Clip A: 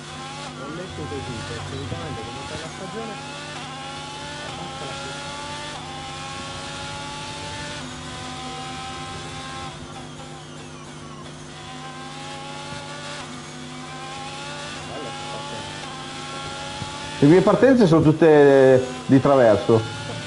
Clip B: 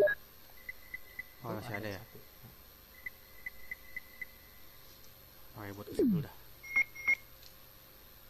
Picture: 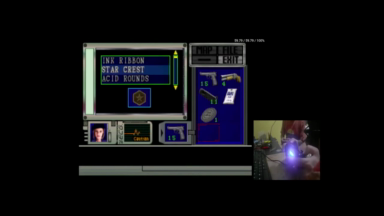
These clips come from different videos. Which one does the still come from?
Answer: B